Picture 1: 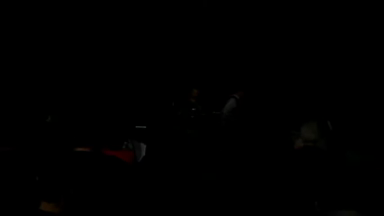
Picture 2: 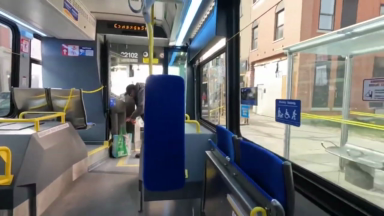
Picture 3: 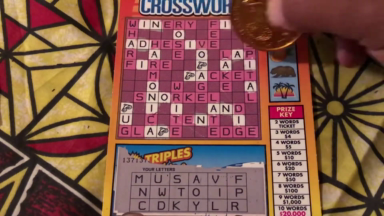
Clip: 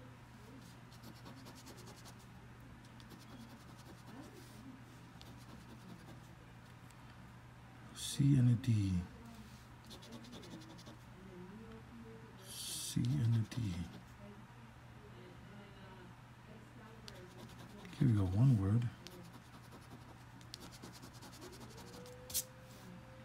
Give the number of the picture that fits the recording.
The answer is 3